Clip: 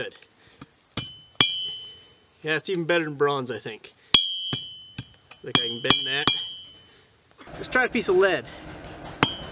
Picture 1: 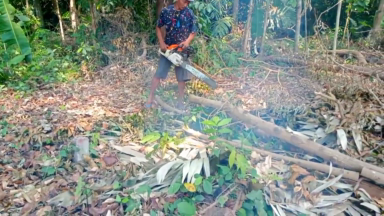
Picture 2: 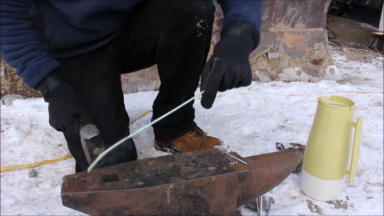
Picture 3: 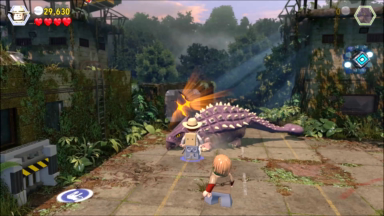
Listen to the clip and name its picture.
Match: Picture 2